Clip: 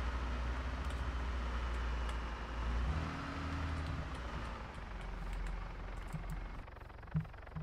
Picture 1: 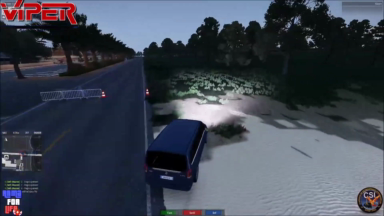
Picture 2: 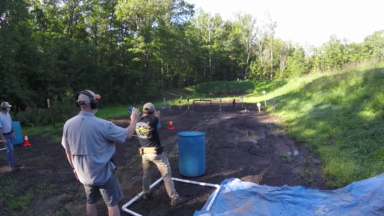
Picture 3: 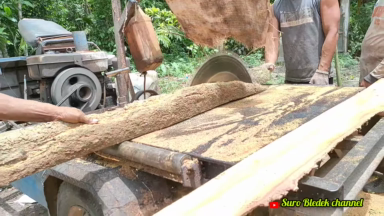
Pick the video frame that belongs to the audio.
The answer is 1